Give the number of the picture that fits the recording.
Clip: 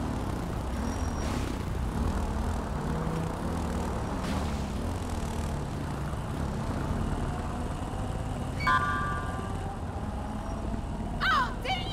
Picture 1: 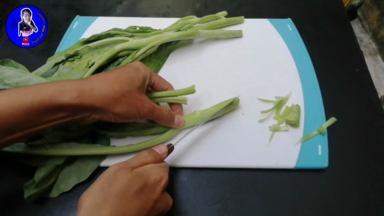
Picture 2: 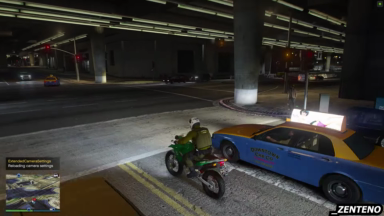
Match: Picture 2